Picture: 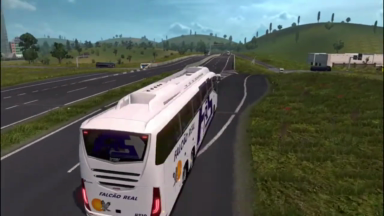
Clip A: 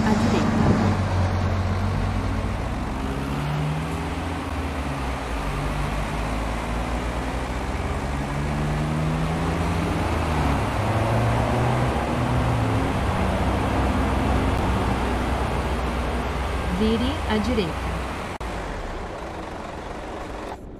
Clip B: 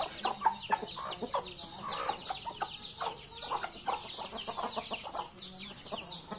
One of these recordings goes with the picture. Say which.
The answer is A